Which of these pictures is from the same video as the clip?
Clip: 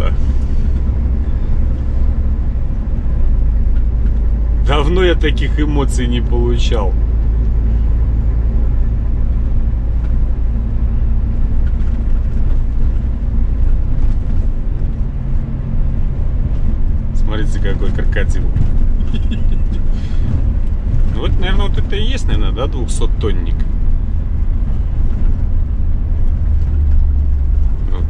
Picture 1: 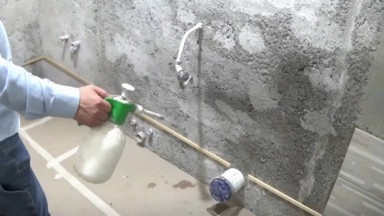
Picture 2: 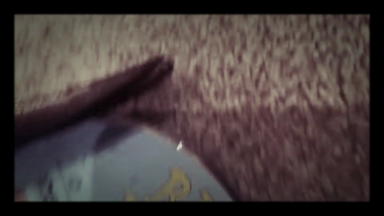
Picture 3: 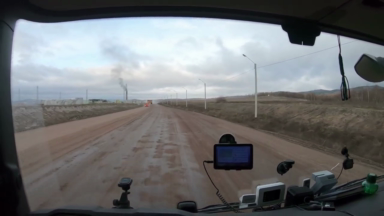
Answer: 3